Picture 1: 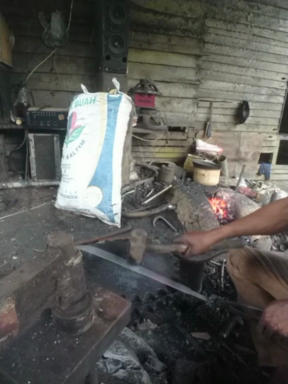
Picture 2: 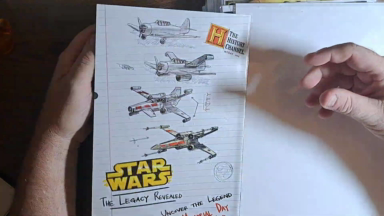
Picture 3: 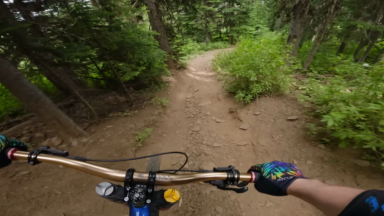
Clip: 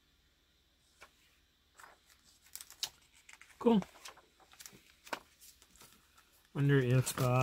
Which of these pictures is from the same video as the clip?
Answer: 2